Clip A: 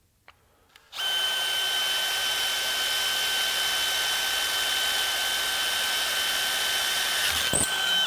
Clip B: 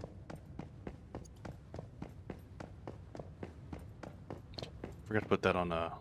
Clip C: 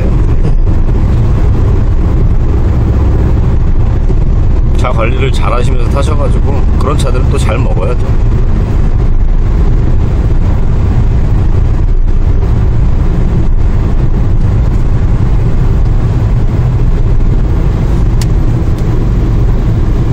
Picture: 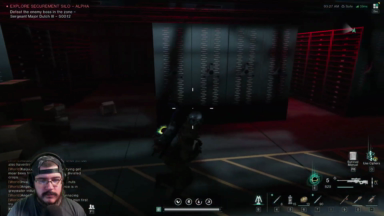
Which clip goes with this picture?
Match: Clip B